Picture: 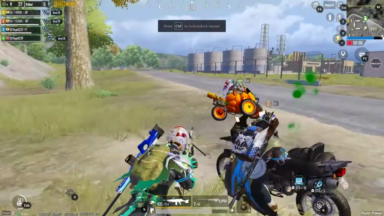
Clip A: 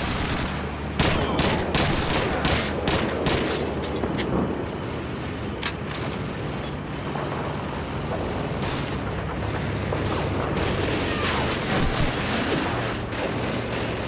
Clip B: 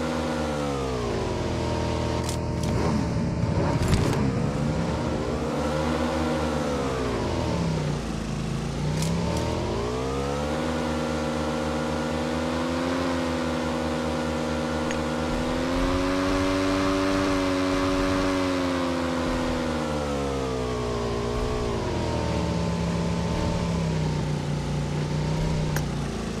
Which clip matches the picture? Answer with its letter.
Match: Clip B